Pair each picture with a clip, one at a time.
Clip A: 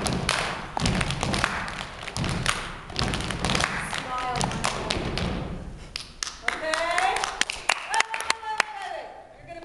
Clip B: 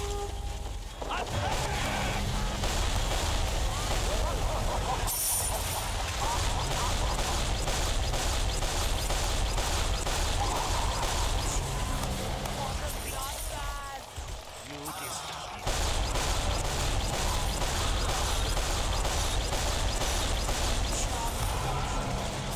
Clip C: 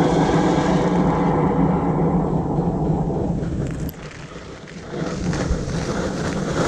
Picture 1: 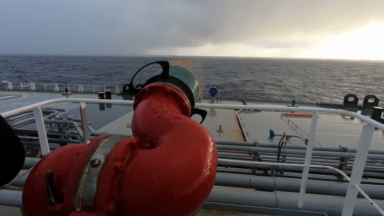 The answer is C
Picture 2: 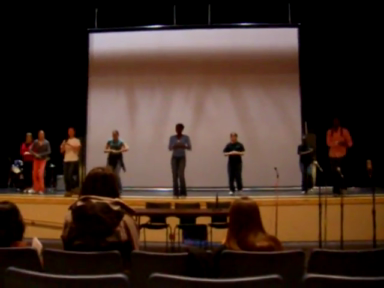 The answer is A